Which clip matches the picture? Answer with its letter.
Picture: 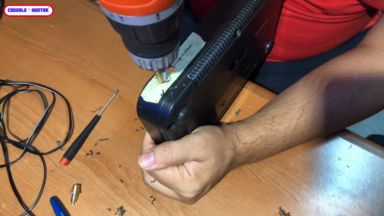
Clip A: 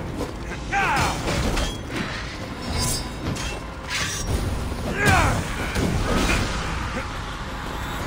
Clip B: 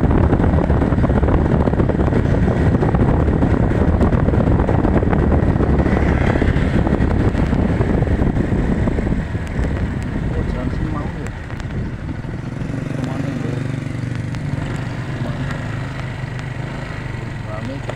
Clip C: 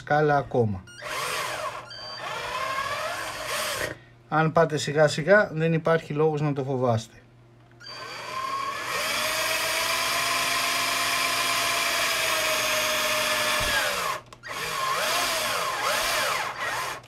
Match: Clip C